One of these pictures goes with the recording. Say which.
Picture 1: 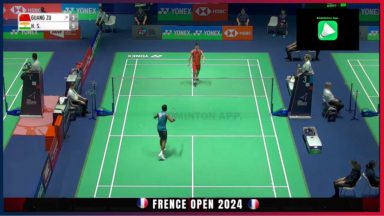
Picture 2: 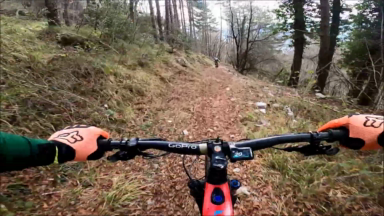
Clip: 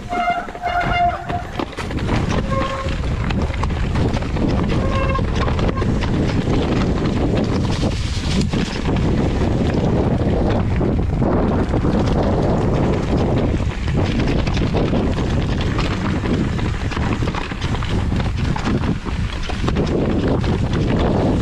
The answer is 2